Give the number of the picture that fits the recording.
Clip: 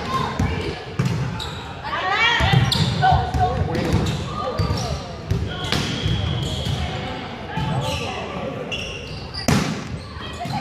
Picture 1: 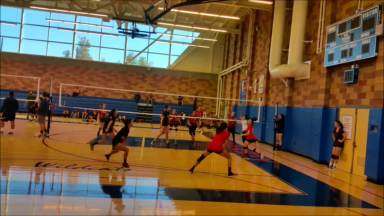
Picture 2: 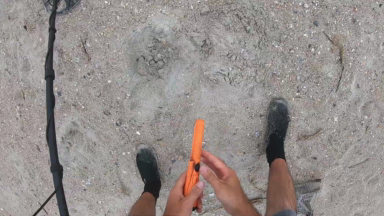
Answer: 1